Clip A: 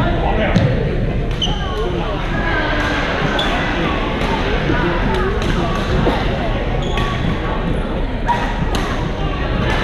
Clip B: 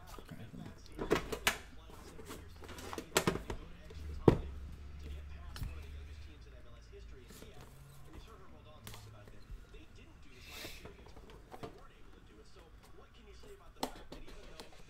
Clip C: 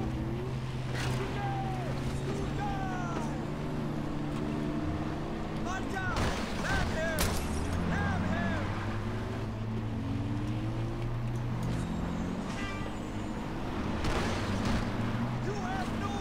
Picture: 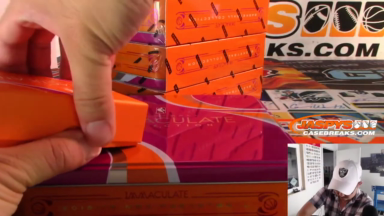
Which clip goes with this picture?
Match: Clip B